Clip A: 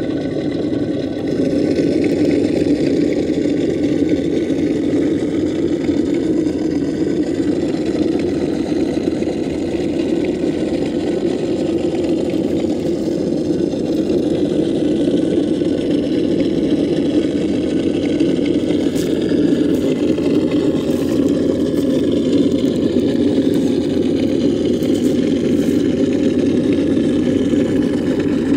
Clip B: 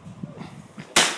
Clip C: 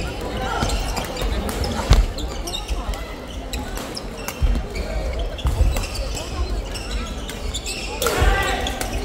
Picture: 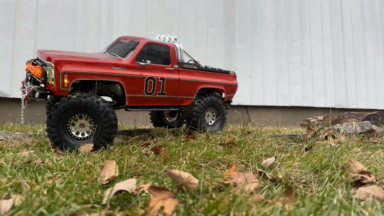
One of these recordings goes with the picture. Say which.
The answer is A